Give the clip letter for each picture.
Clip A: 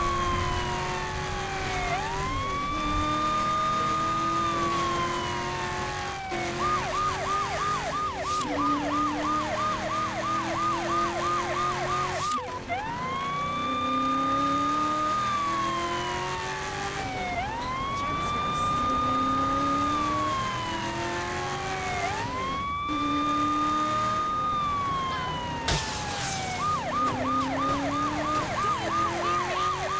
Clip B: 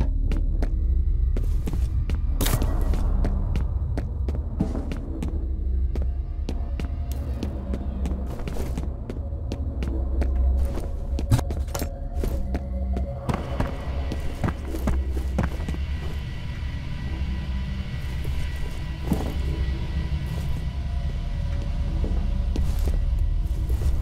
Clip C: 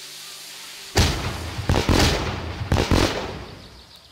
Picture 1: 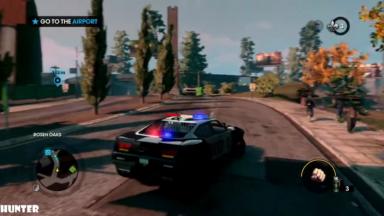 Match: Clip A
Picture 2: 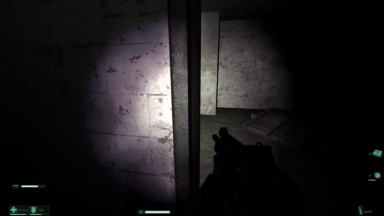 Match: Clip B